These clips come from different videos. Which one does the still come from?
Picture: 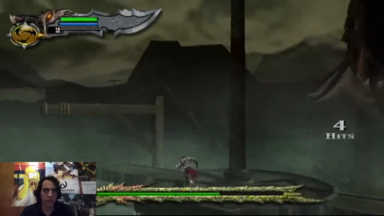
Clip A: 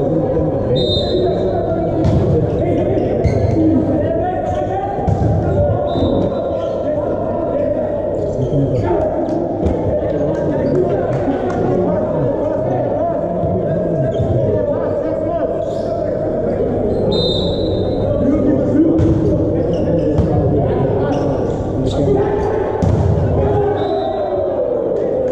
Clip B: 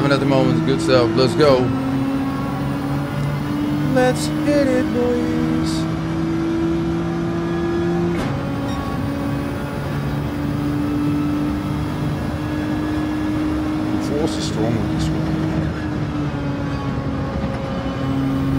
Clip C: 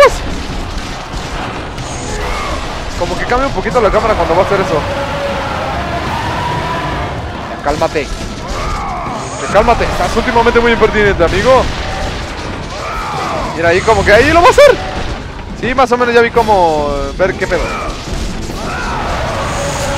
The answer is C